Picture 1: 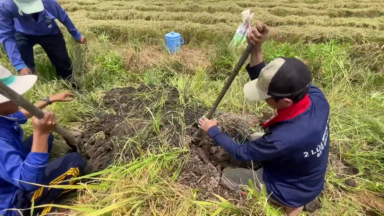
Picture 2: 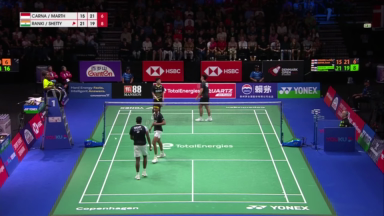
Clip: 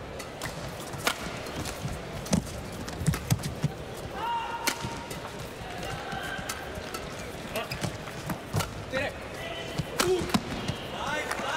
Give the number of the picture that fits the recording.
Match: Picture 2